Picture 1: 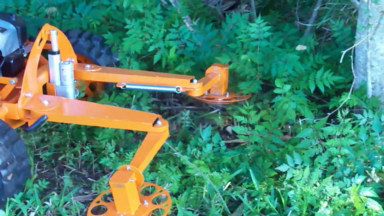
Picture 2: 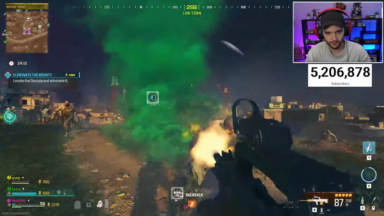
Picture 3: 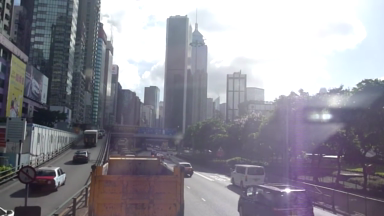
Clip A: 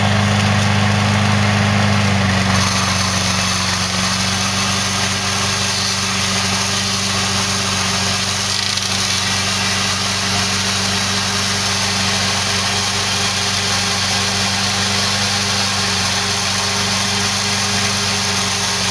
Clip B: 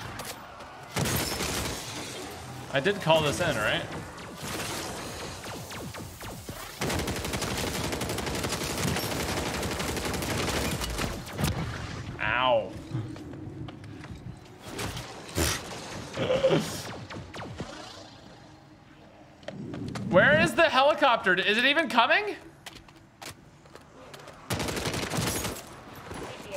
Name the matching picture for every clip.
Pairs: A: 1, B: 2